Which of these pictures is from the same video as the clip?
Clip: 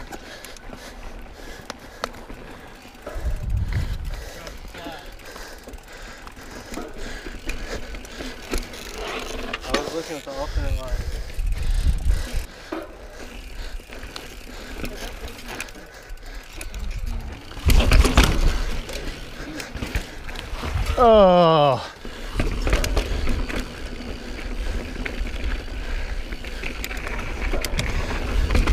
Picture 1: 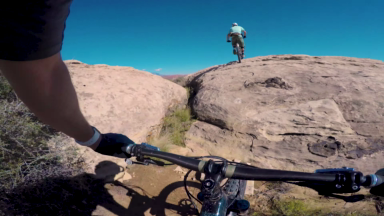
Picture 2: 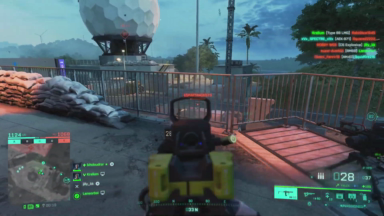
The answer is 1